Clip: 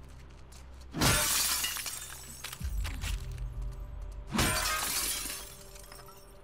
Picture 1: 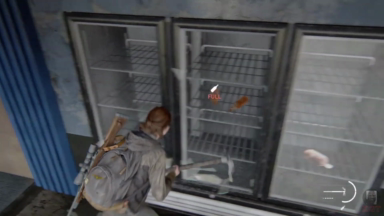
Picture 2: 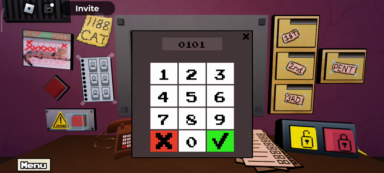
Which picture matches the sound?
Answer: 1